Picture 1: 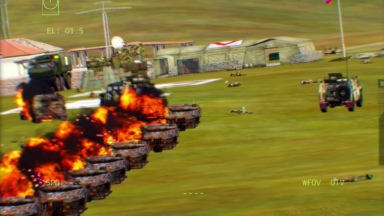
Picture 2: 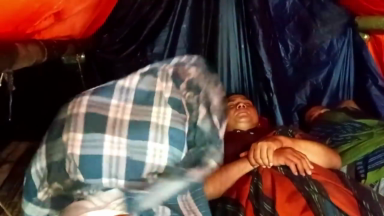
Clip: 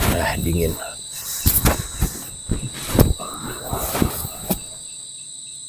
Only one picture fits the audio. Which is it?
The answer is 2